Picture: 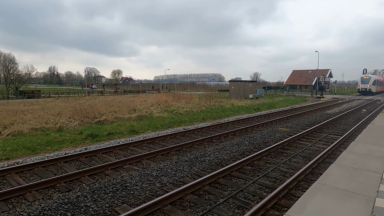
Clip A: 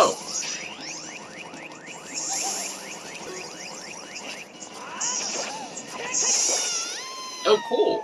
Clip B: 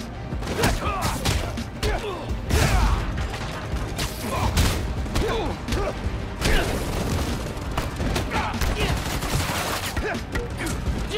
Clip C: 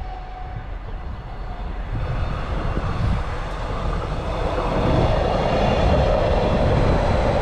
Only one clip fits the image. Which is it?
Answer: C